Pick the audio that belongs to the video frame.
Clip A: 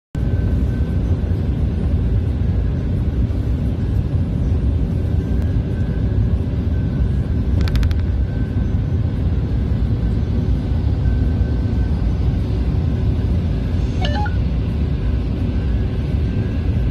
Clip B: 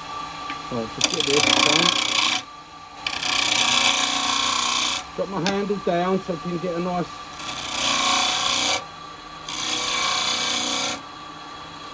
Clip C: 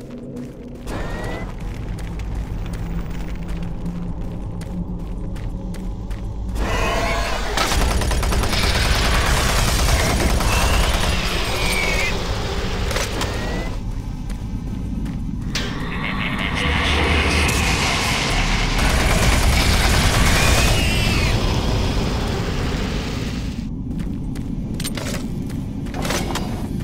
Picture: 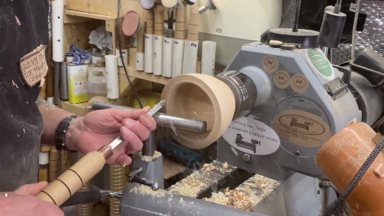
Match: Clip B